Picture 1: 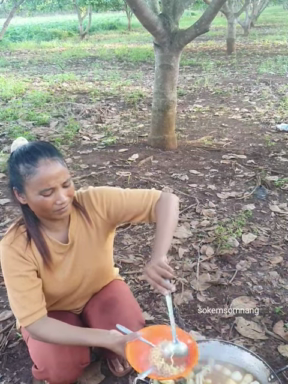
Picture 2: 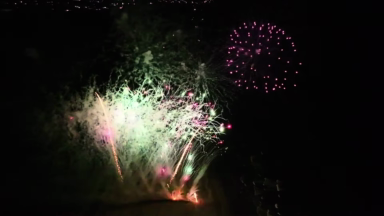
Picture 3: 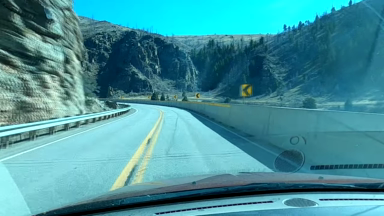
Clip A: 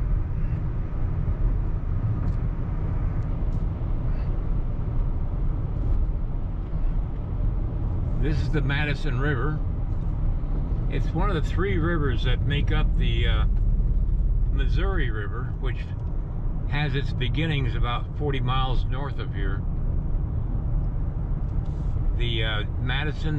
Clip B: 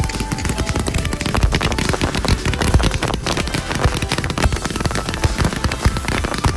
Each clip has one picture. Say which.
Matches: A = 3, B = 2